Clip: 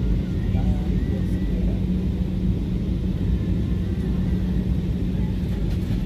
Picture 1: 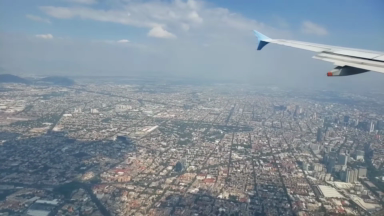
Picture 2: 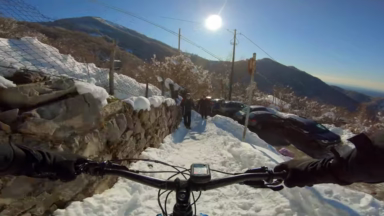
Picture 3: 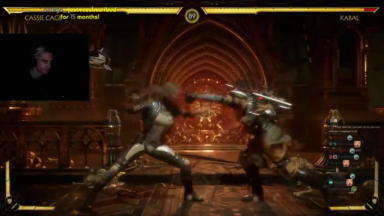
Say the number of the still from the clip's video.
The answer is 1